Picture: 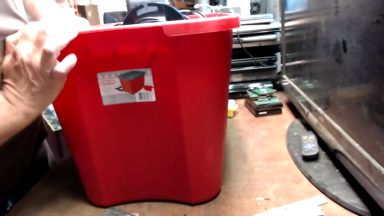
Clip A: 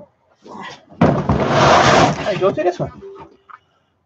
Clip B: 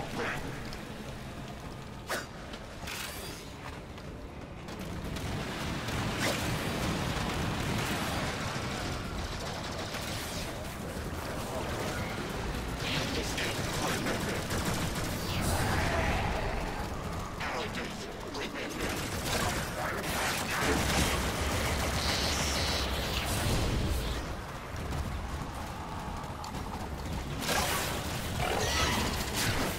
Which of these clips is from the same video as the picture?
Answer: A